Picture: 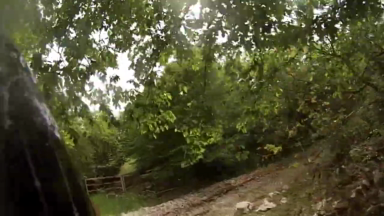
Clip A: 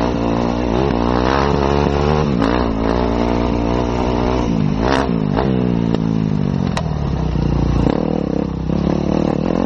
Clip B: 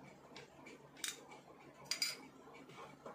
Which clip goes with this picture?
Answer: A